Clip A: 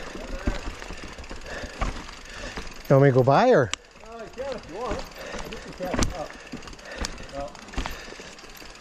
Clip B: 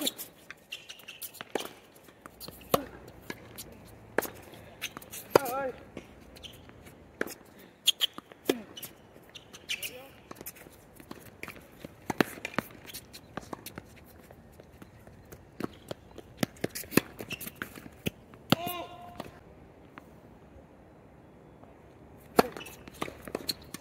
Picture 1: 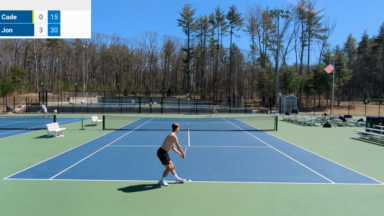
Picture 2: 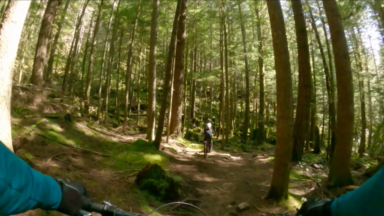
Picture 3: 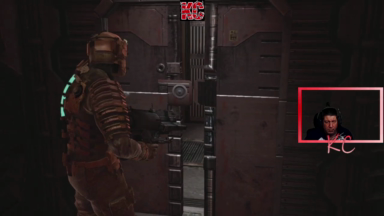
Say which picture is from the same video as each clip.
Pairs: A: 2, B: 1